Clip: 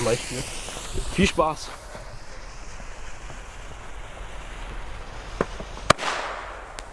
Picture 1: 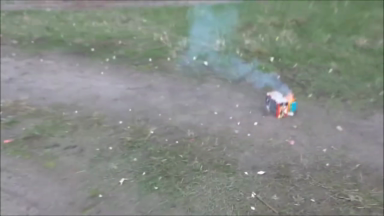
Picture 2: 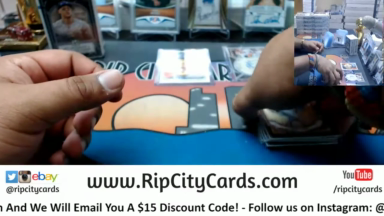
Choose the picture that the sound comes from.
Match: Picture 1